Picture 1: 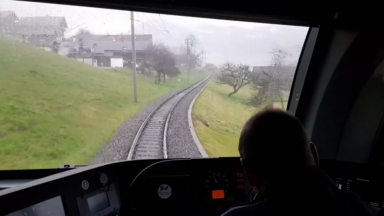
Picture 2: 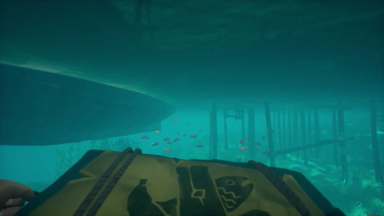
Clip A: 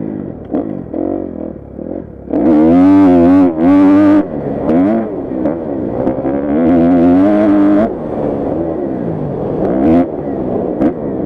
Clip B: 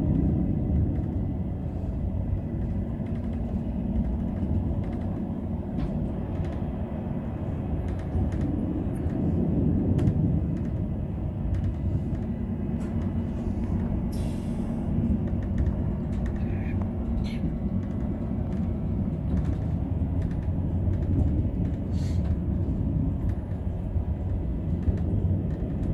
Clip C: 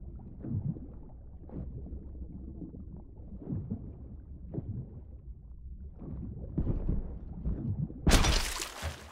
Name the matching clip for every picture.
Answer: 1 B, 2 C